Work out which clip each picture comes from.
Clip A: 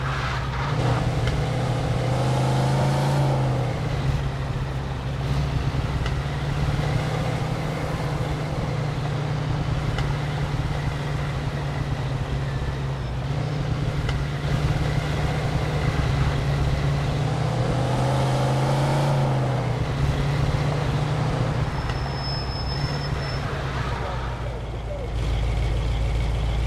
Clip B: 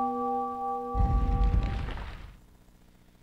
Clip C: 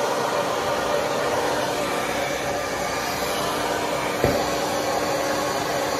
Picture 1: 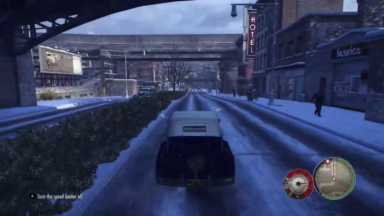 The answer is A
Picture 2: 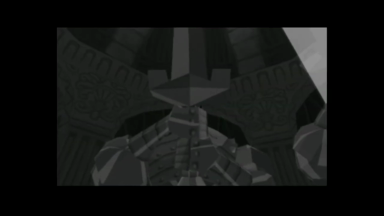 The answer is B